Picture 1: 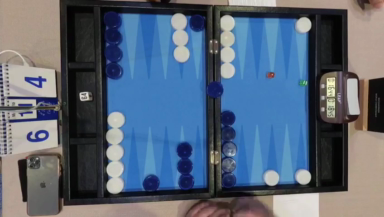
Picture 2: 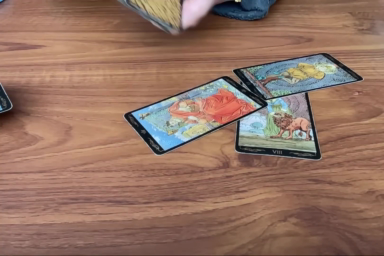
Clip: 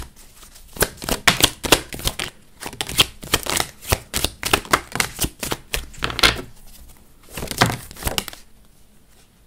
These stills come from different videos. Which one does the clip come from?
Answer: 2